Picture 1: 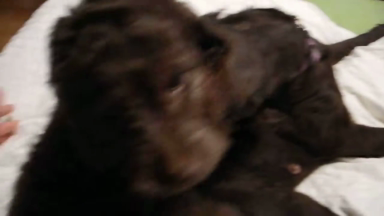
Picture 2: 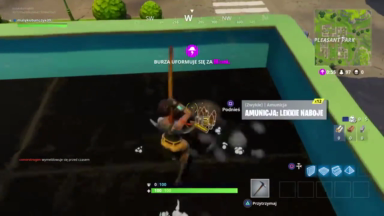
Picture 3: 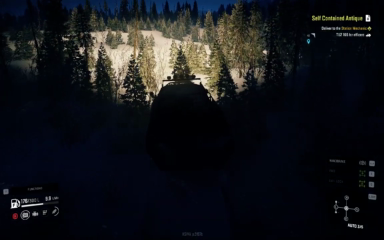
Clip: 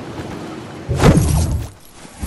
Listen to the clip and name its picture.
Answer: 2